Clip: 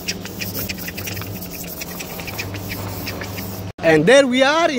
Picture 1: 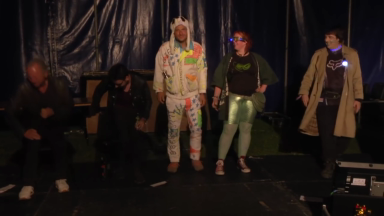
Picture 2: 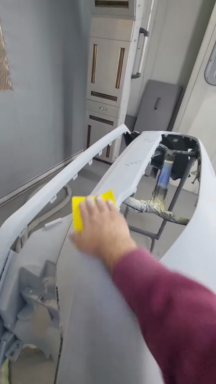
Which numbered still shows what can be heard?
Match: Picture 2